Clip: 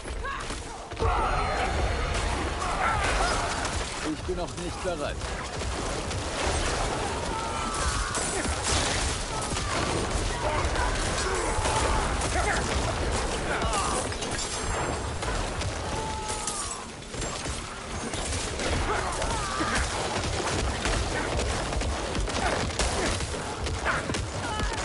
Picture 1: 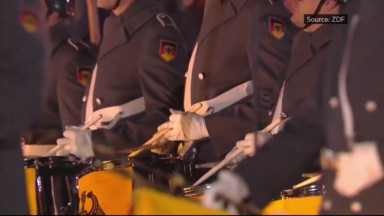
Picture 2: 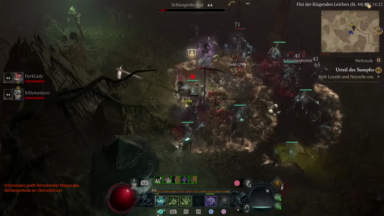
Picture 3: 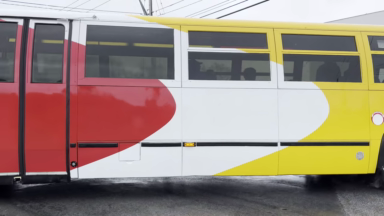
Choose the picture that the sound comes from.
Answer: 2